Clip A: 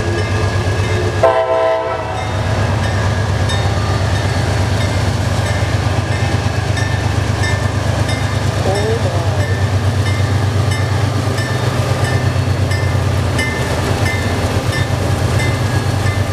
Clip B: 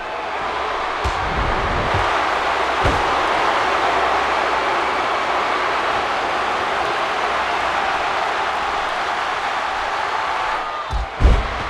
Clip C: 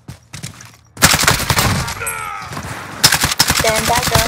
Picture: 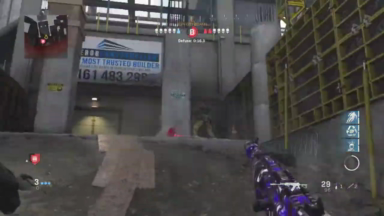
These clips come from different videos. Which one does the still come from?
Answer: C